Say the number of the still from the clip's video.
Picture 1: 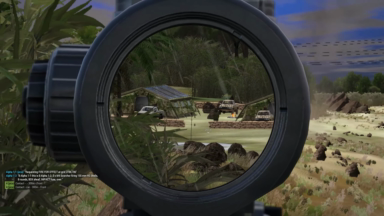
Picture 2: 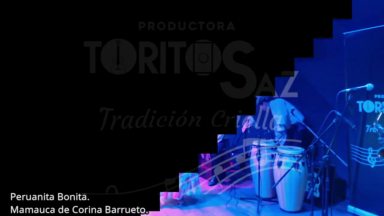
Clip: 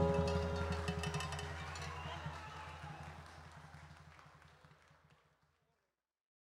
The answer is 2